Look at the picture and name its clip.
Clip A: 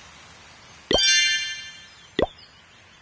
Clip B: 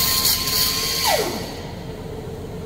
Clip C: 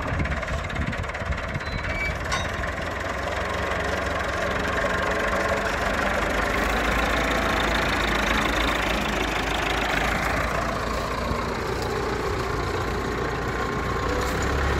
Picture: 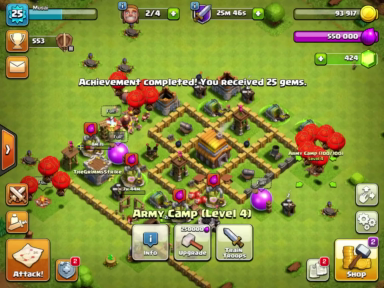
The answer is A